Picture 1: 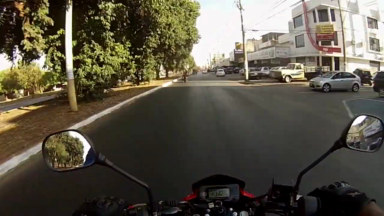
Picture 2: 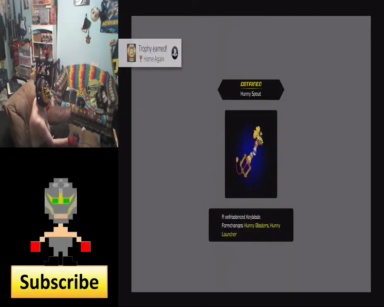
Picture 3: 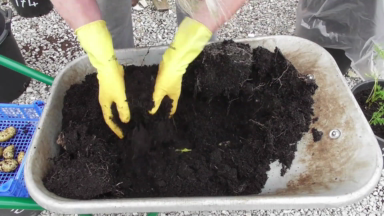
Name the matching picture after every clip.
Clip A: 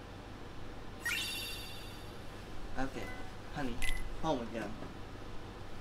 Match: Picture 2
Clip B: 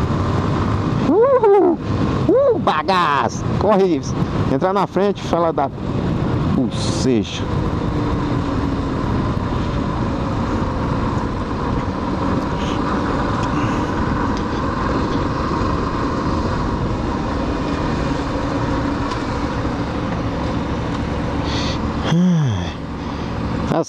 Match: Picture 1